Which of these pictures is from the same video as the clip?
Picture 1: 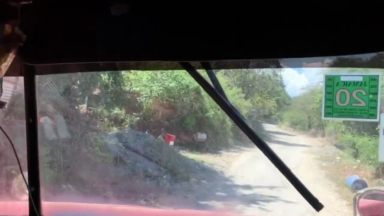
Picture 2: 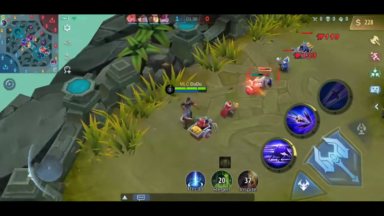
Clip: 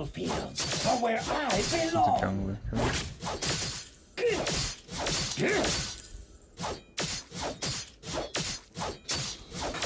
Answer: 2